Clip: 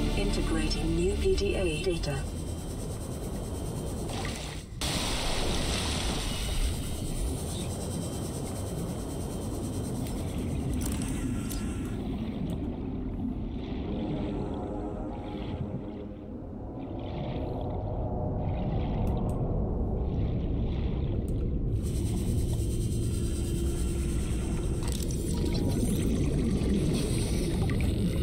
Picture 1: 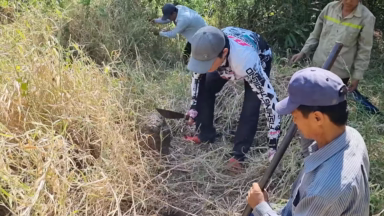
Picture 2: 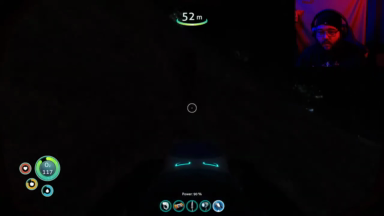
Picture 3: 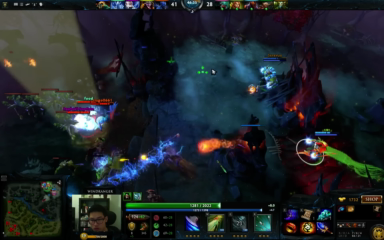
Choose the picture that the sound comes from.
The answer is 2